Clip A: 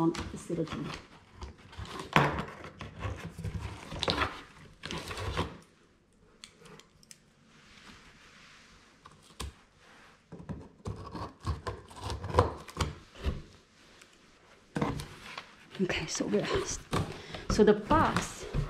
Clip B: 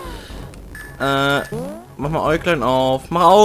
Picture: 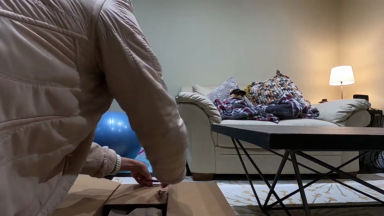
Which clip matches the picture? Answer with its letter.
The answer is A